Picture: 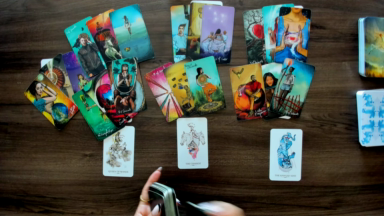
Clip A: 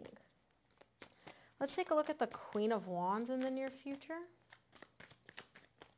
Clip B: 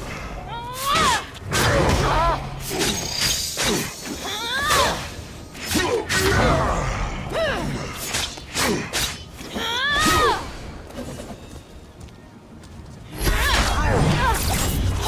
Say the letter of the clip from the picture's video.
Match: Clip A